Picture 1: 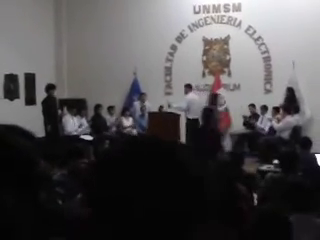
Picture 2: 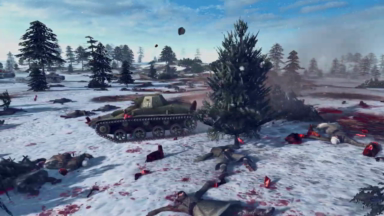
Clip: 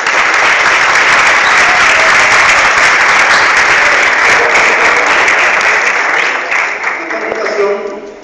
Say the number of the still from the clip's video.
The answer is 1